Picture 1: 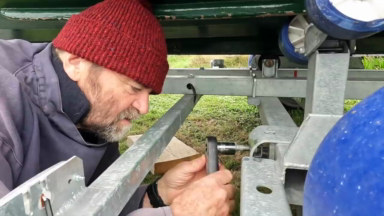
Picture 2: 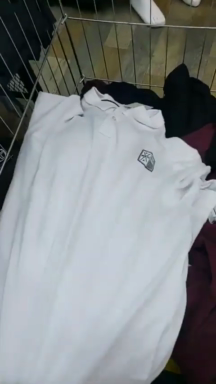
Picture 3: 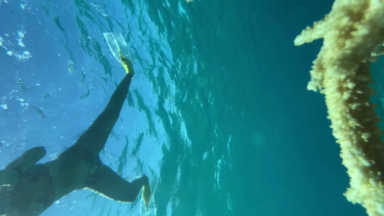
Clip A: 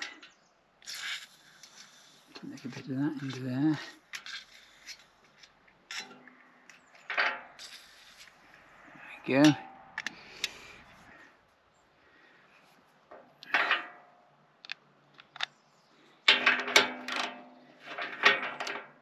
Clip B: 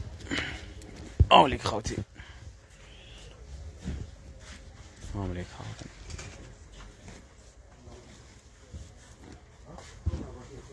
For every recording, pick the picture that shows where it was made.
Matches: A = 1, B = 2